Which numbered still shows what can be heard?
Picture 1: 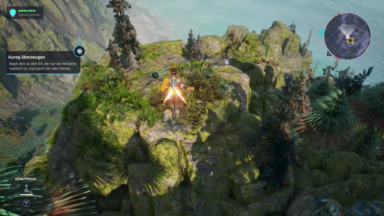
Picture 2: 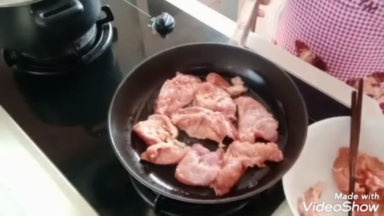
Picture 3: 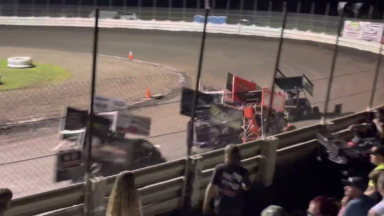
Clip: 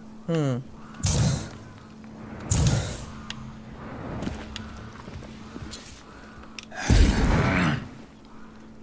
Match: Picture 1